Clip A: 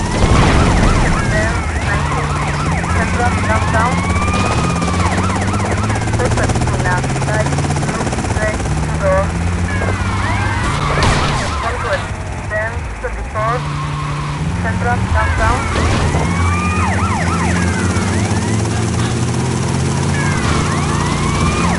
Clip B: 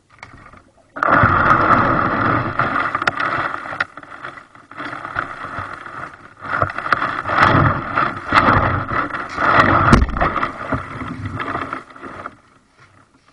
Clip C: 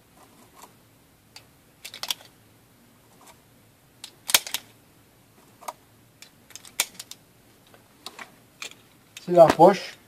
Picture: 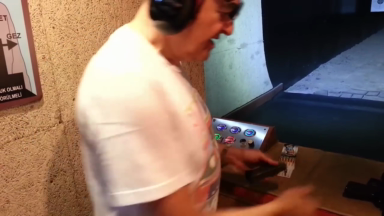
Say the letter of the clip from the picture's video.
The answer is C